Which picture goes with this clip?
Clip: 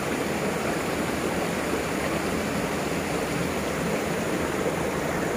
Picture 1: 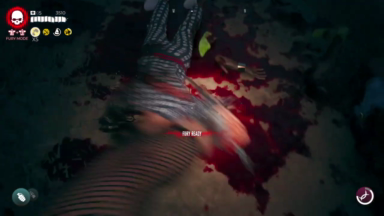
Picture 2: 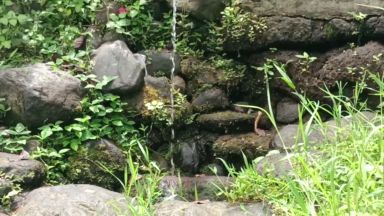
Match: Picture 2